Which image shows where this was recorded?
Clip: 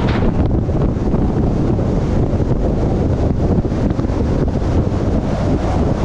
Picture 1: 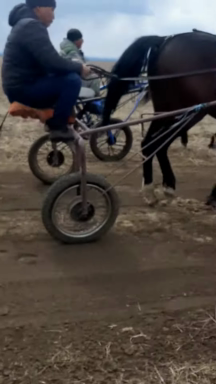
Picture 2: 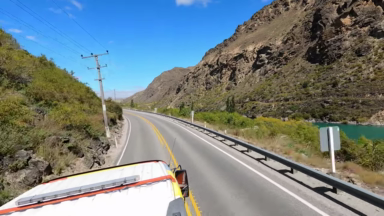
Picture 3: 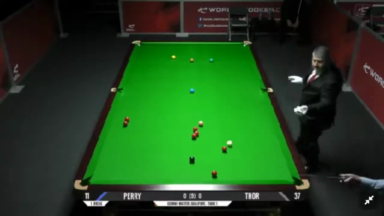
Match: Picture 2